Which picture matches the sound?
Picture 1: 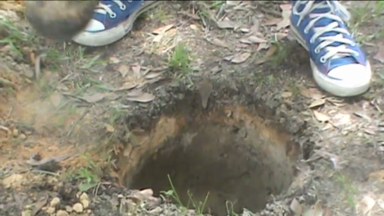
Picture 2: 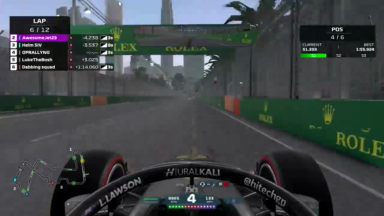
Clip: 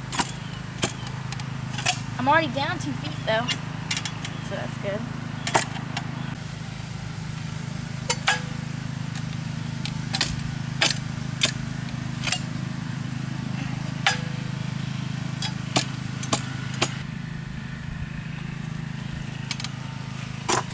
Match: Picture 1